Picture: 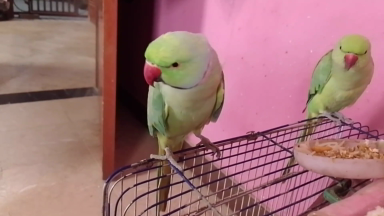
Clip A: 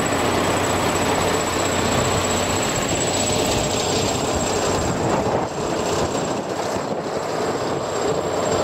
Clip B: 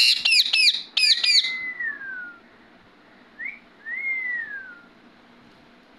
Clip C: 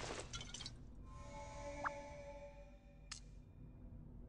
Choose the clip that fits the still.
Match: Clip B